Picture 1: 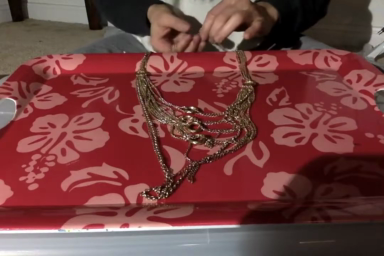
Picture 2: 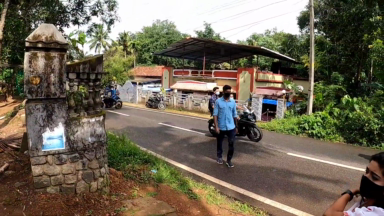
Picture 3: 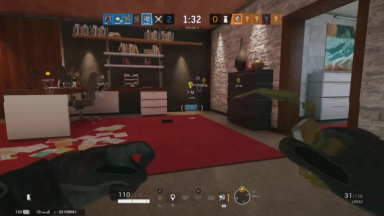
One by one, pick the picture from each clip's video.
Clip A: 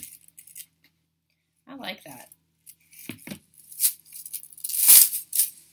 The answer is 1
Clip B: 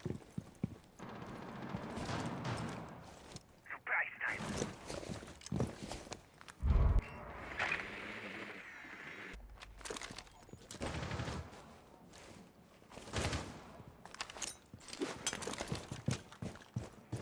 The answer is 3